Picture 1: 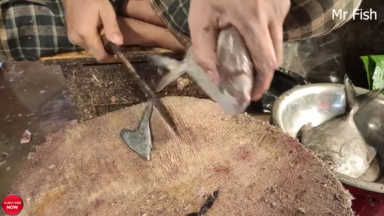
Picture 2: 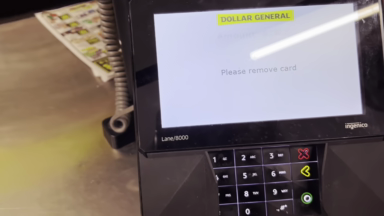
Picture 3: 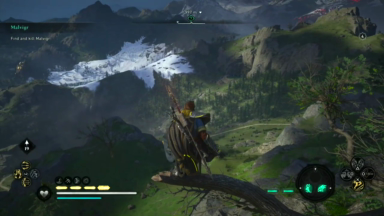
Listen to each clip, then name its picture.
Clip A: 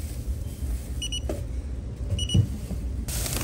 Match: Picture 2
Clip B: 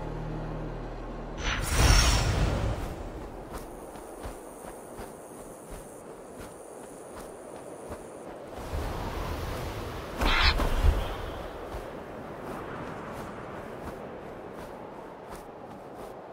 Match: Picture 3